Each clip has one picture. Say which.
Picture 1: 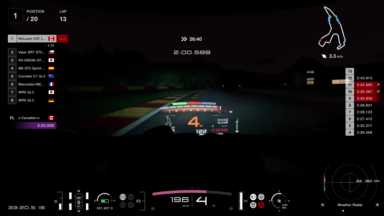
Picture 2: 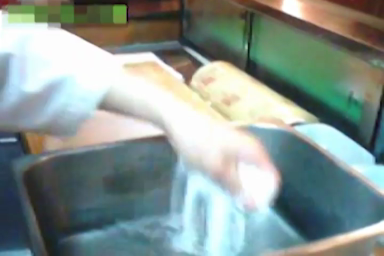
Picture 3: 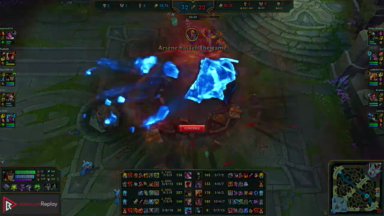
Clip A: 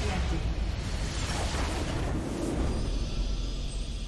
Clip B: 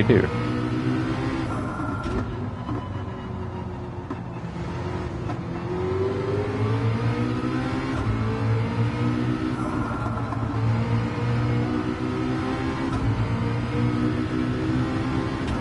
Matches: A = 3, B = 1